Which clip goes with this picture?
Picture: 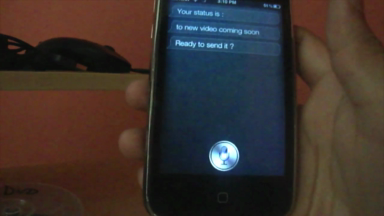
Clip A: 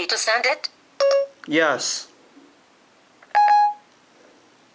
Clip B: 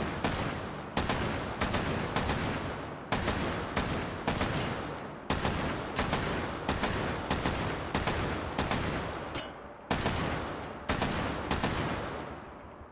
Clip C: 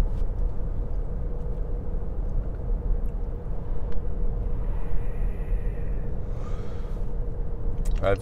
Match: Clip A